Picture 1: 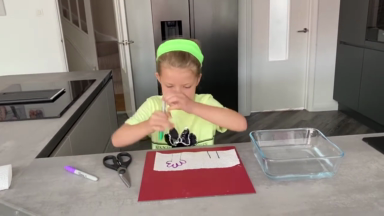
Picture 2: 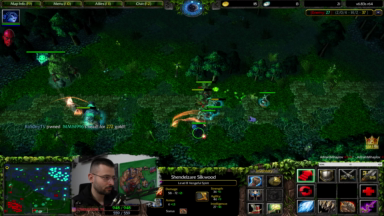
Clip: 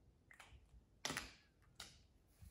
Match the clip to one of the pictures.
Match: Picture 1